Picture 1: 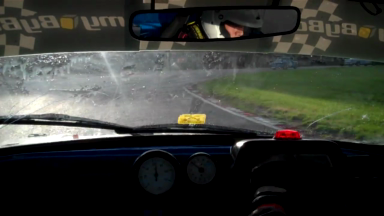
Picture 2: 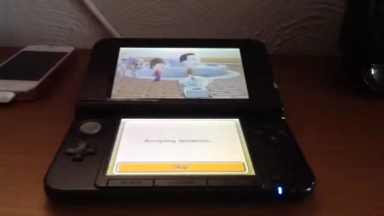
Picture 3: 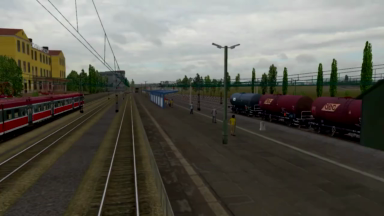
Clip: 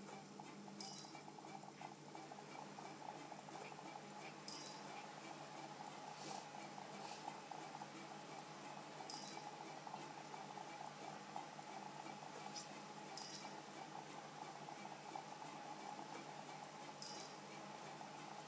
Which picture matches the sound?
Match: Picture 2